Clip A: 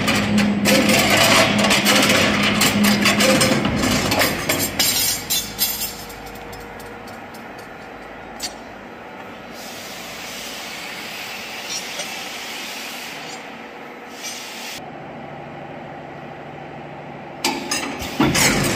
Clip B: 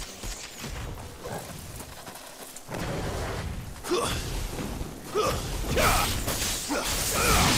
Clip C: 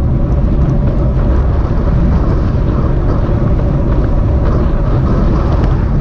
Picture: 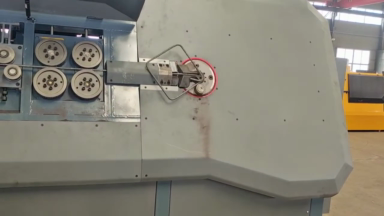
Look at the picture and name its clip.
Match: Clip A